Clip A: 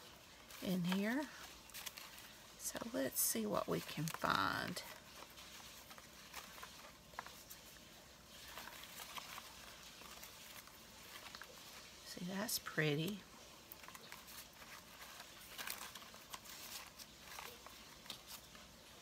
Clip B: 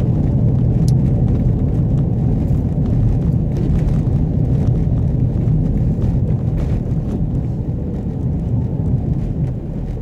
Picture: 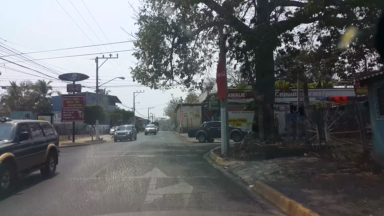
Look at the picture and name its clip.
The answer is B